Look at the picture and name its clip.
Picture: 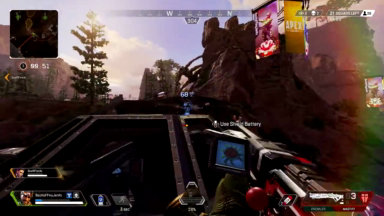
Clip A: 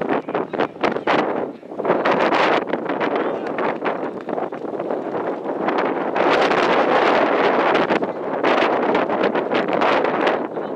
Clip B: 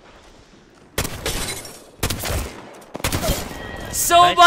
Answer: B